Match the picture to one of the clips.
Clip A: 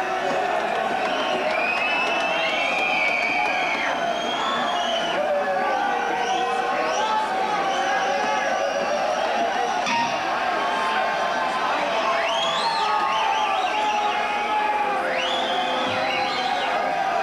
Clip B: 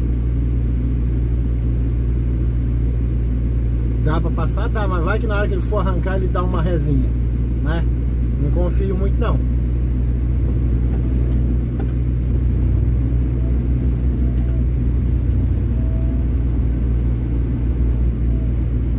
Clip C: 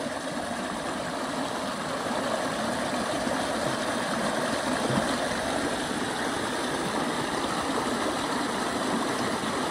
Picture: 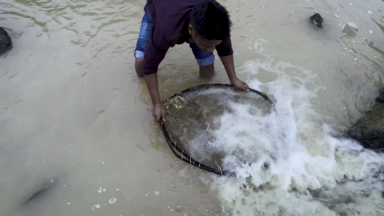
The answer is C